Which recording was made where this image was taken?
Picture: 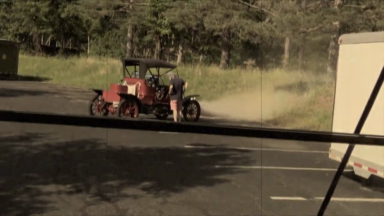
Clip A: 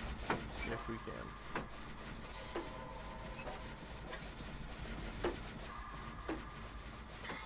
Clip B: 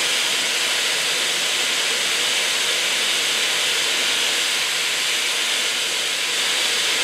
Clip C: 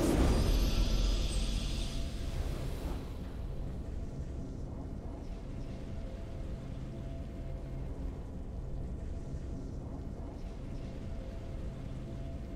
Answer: B